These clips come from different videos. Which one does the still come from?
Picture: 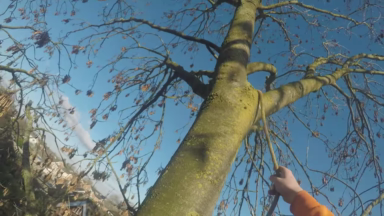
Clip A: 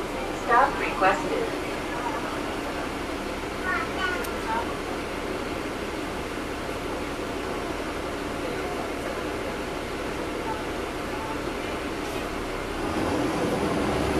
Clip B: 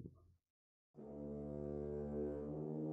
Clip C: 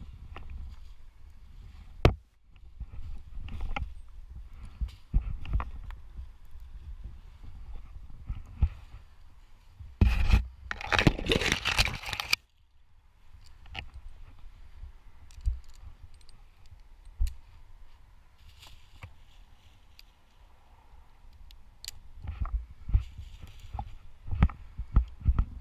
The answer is C